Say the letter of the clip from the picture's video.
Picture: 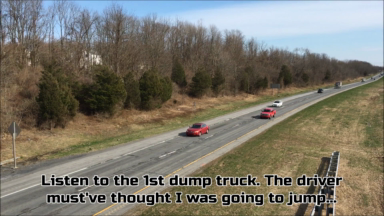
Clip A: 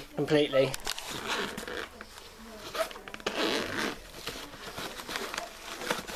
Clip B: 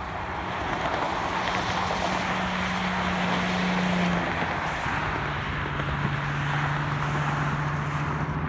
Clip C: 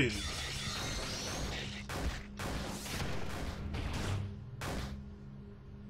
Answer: B